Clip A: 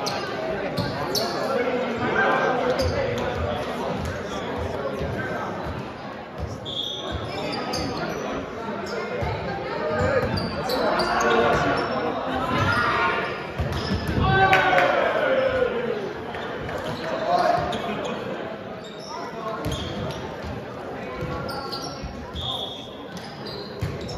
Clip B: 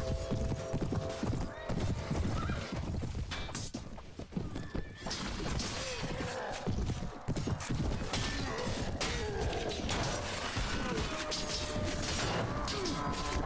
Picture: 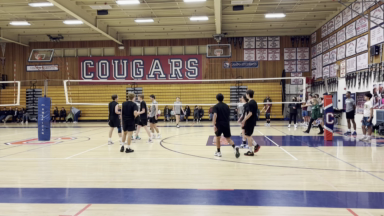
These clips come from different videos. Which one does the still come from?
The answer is A